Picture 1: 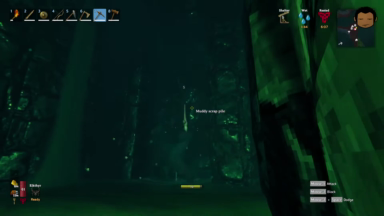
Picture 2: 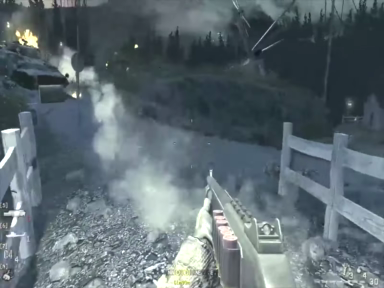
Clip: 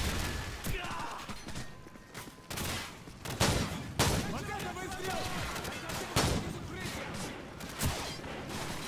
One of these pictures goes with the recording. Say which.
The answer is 2